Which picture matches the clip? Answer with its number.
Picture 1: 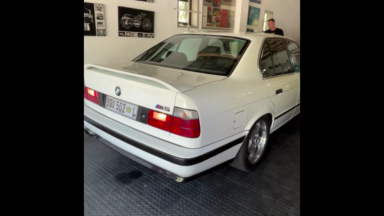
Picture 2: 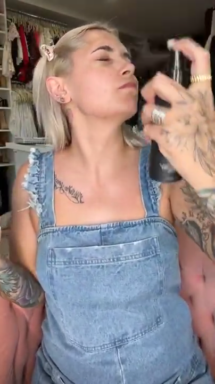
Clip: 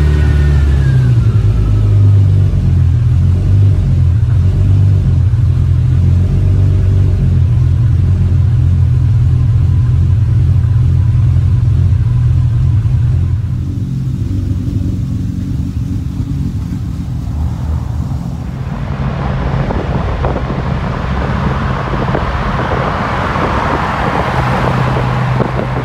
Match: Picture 1